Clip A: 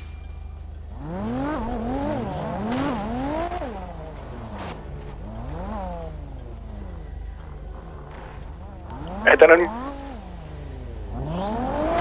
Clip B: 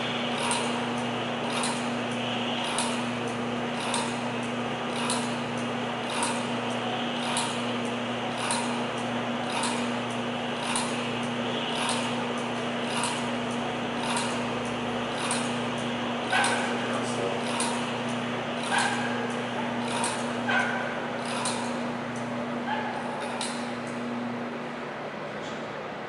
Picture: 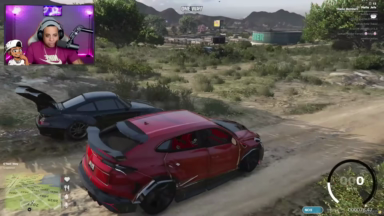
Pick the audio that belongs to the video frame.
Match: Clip A